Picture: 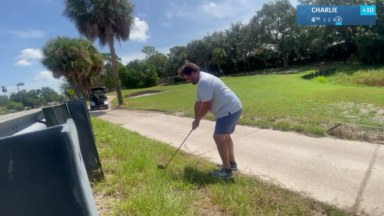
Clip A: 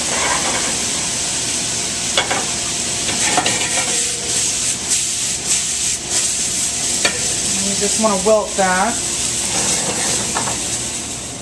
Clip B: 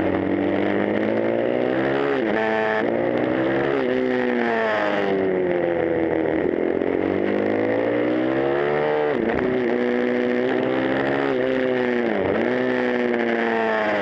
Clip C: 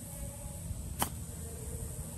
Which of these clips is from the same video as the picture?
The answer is C